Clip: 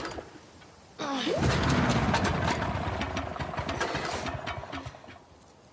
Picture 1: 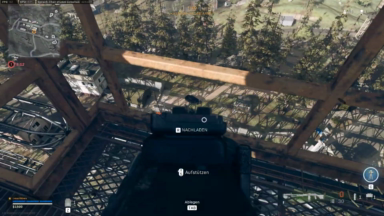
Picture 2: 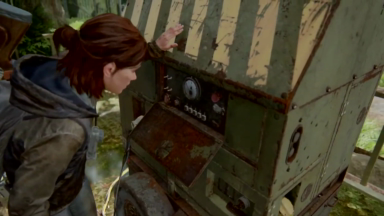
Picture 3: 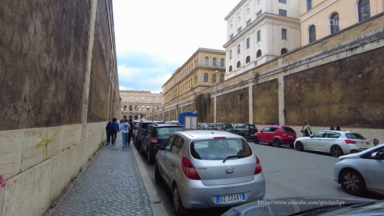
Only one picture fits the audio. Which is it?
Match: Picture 2